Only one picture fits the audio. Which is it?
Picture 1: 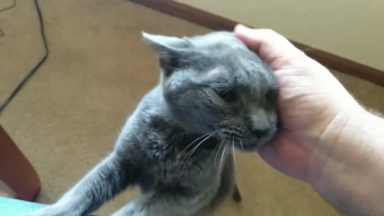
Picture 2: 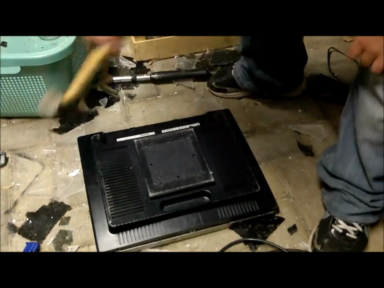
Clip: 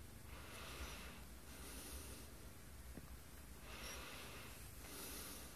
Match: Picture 1